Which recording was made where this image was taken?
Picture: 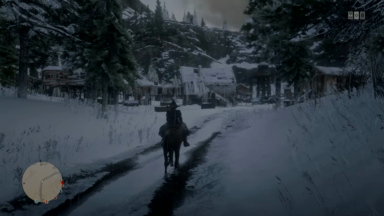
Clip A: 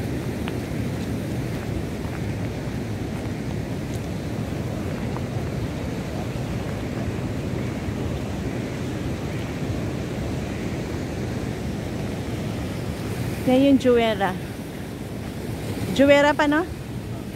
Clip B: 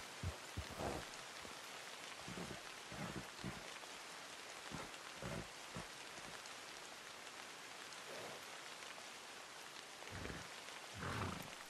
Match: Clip B